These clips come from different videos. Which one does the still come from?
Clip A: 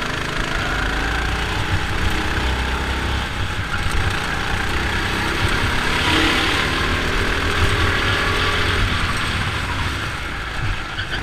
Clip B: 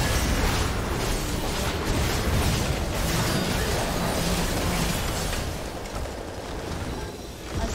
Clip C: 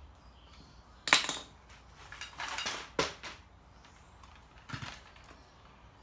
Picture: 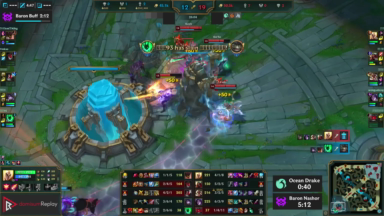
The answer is B